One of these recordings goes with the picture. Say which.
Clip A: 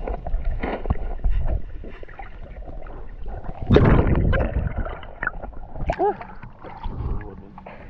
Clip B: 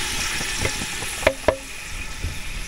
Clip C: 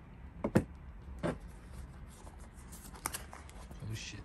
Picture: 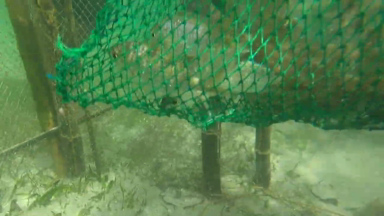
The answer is A